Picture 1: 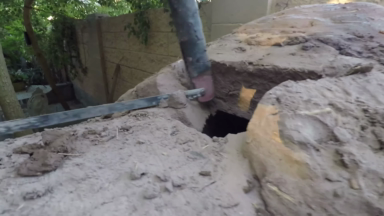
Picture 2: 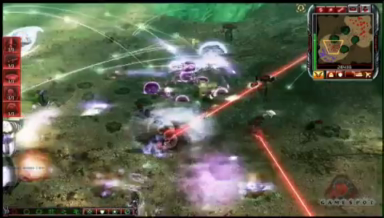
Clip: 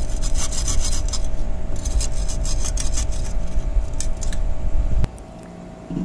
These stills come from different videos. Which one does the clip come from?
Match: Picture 1